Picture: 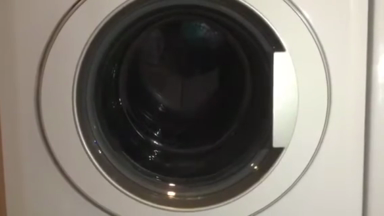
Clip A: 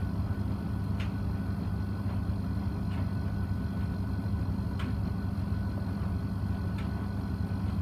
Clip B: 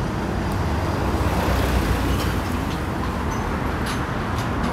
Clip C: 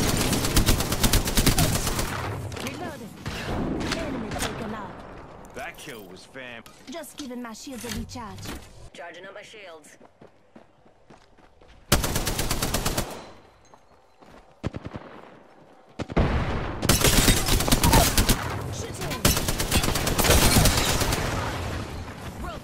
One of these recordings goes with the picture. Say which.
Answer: A